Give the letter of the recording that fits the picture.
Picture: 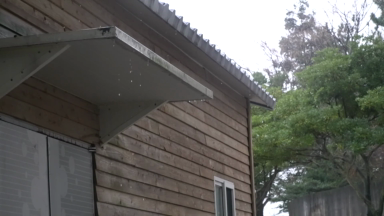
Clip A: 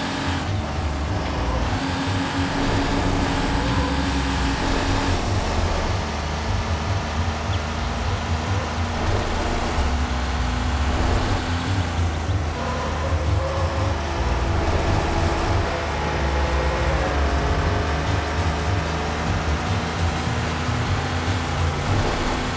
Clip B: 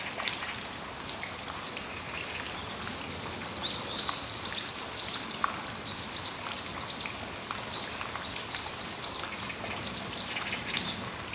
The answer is B